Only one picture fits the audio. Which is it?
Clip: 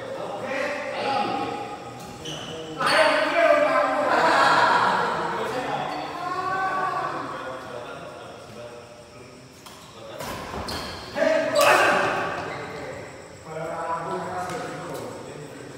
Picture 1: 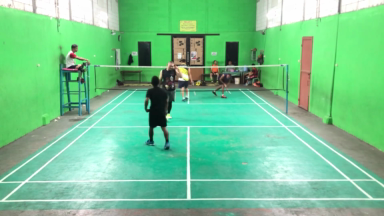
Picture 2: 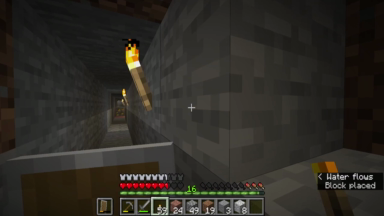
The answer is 1